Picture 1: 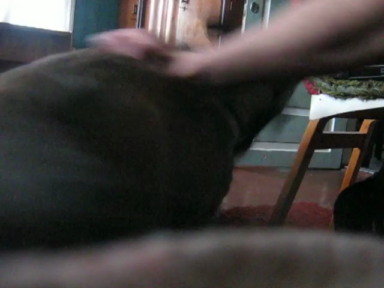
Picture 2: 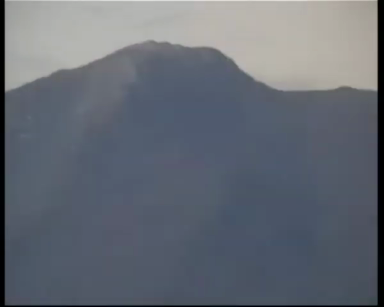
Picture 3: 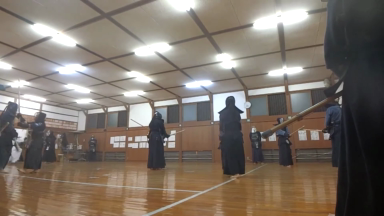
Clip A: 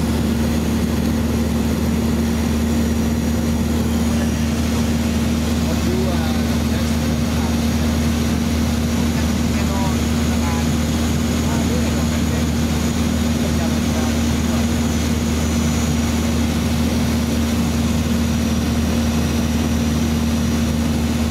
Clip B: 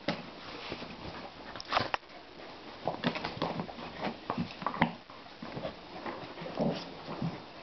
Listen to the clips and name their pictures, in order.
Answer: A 2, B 1